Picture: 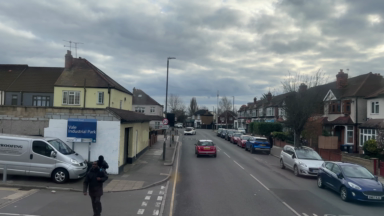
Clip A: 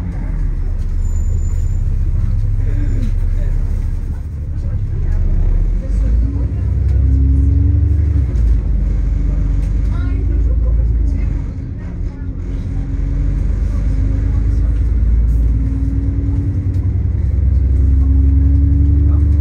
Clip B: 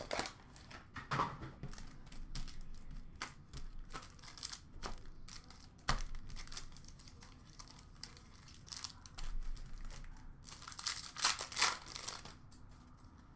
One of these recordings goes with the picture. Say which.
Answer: A